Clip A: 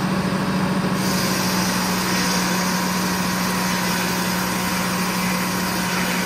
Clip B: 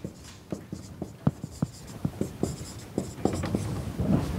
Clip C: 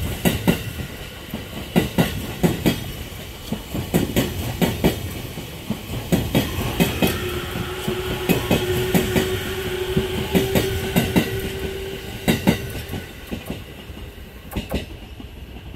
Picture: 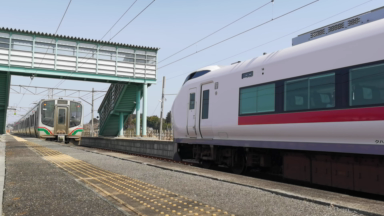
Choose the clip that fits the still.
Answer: C